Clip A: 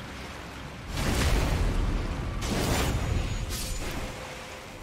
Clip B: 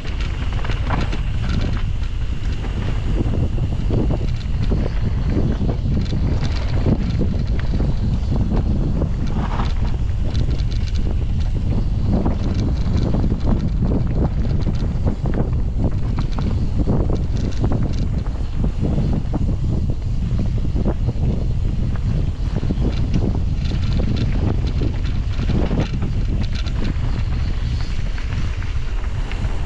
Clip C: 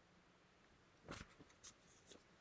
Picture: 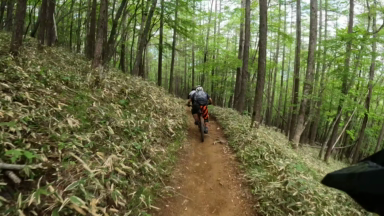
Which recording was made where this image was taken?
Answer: B